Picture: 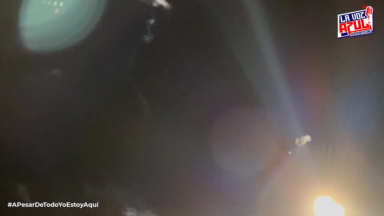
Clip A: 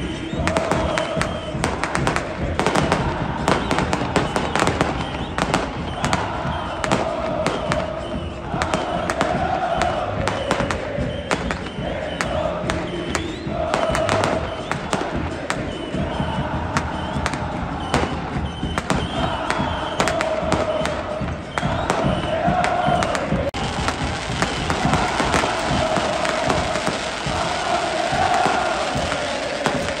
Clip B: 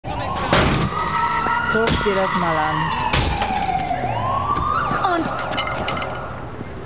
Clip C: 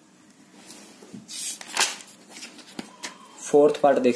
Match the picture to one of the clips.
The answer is A